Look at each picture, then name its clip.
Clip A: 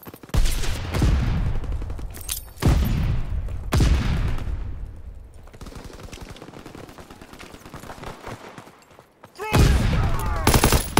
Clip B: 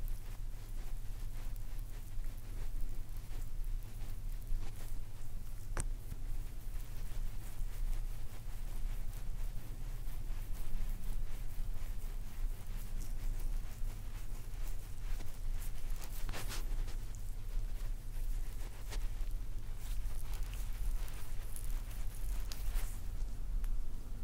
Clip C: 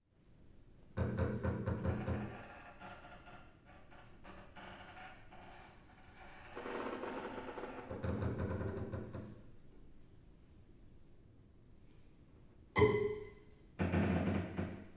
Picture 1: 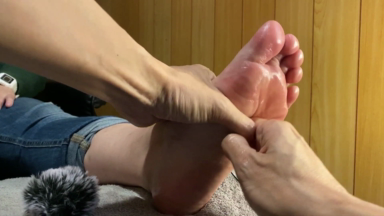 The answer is B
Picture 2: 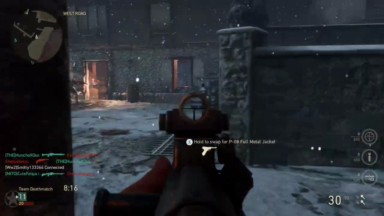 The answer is A